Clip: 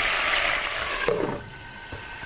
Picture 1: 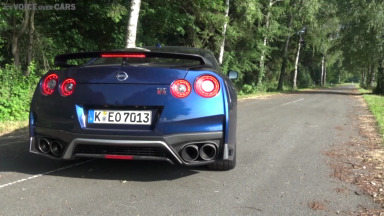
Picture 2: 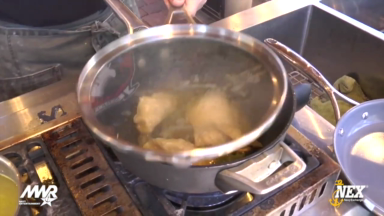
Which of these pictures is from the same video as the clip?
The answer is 2